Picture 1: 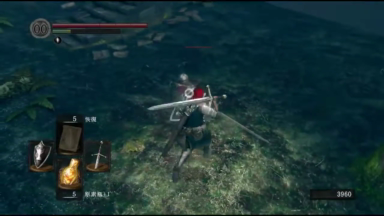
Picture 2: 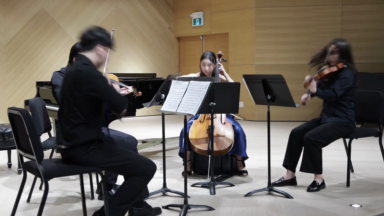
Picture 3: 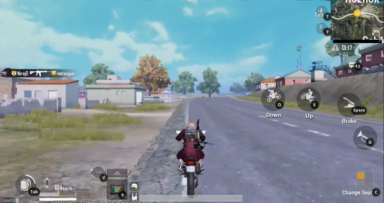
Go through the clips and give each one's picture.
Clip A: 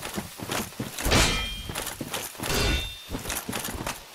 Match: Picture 1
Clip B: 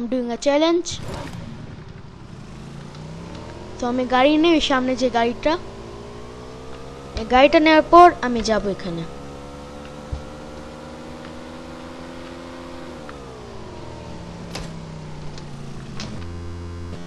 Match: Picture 3